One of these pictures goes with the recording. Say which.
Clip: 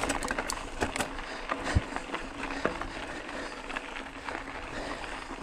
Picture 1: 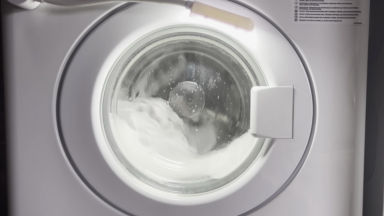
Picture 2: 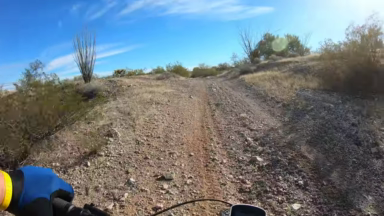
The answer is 2